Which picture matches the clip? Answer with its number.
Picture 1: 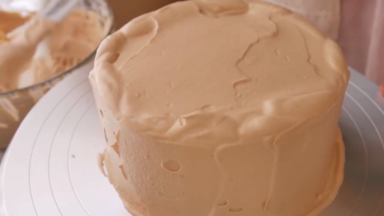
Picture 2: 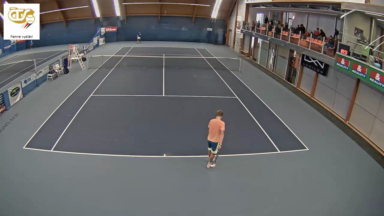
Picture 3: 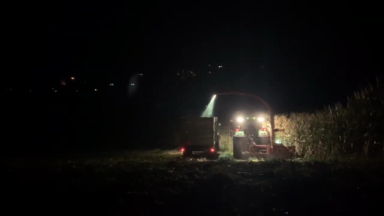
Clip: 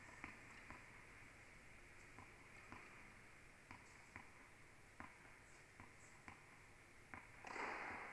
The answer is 2